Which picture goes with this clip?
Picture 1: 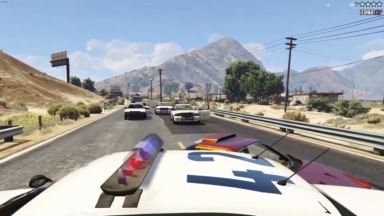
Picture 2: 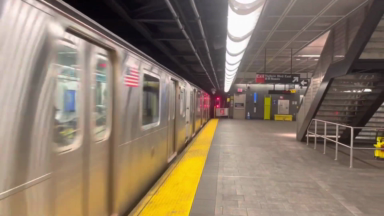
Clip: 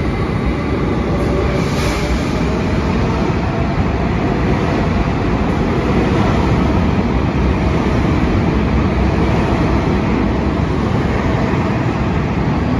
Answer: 2